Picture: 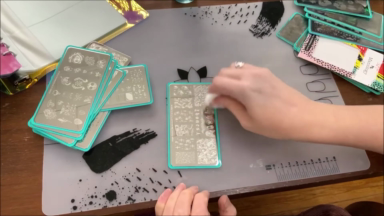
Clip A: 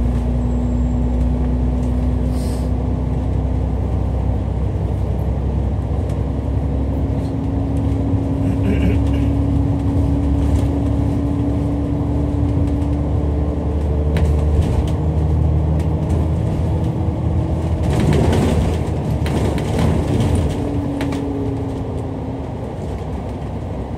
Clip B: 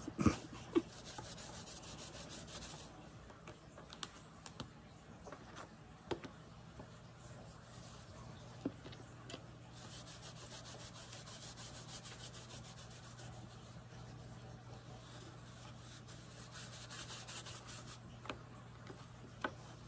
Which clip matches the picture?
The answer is B